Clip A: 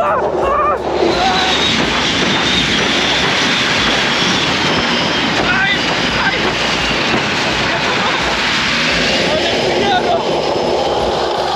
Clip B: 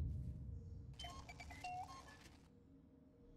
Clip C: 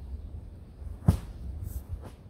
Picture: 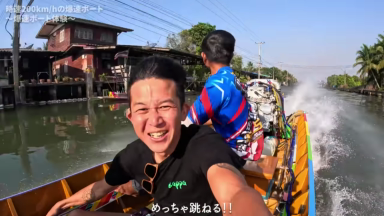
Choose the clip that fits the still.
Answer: A